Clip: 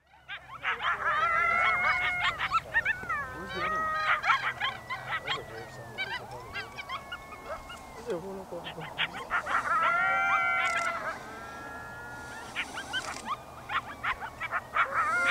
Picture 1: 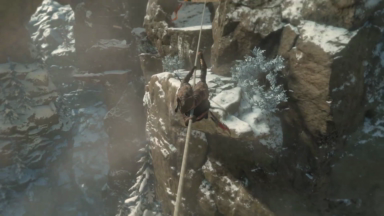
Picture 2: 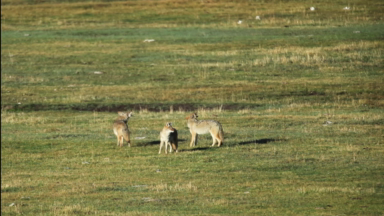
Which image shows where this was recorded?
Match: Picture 2